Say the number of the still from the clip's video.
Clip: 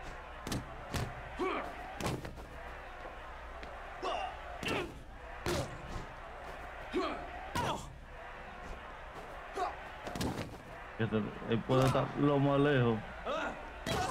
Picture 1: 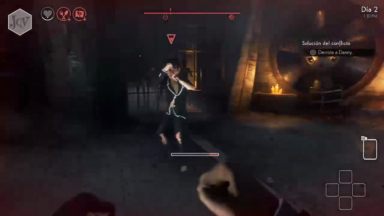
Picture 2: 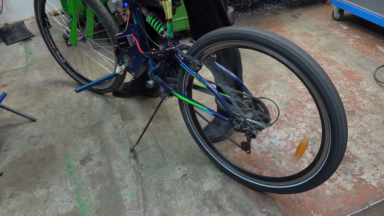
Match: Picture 1